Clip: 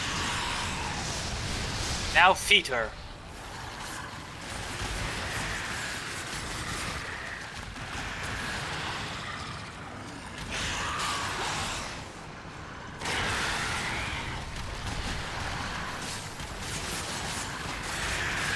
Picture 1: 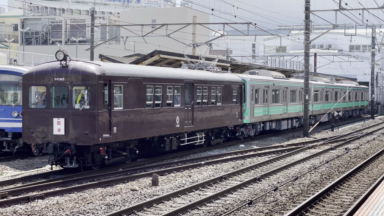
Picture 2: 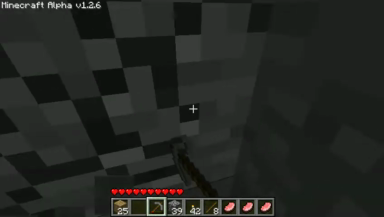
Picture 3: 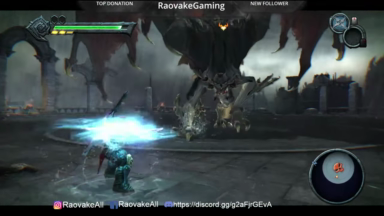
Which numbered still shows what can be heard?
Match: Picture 3